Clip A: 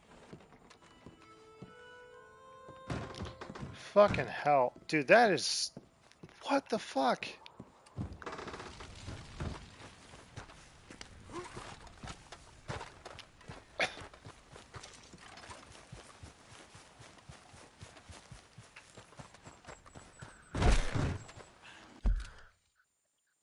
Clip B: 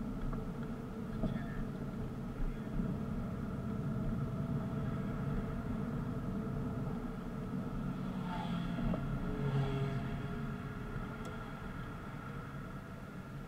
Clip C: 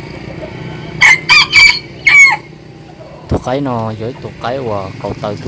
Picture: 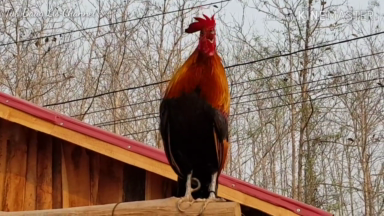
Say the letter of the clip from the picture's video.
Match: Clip C